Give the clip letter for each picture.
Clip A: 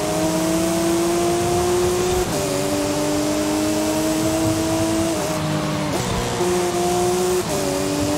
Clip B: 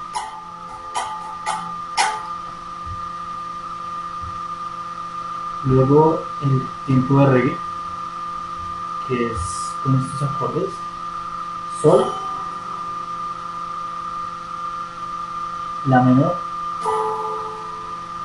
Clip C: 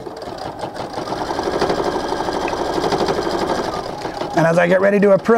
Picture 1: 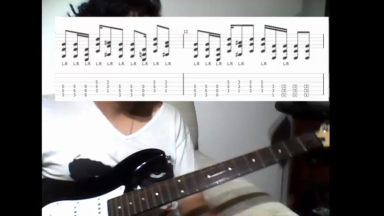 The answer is B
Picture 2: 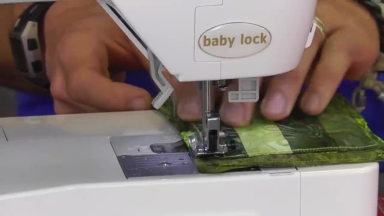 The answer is C